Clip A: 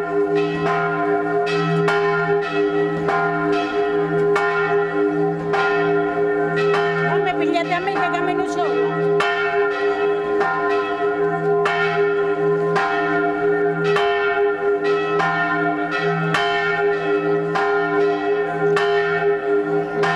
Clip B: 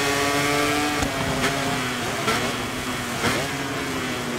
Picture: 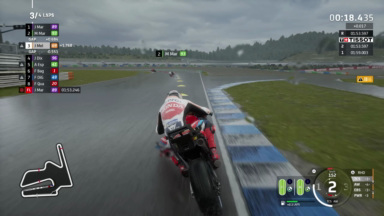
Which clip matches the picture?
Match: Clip B